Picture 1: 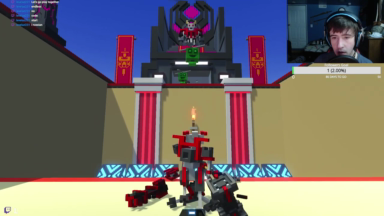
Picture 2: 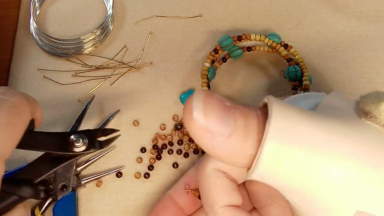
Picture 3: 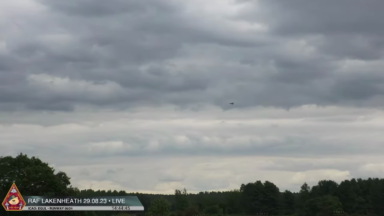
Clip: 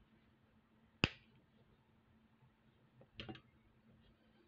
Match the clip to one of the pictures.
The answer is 2